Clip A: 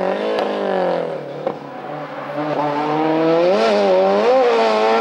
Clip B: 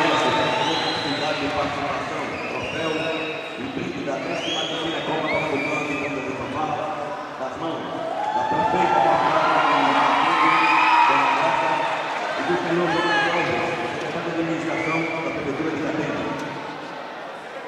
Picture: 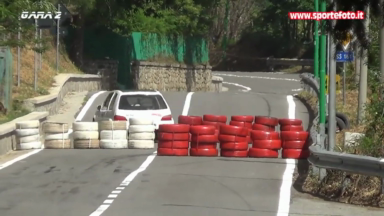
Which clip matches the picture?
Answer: A